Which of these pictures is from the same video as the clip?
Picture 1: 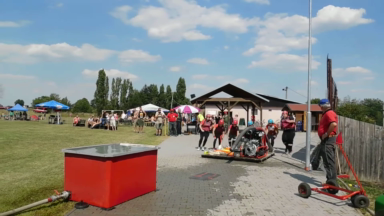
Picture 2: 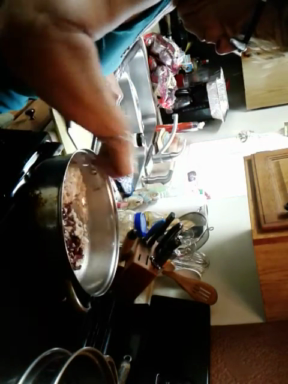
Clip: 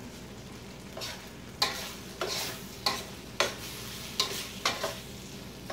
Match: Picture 2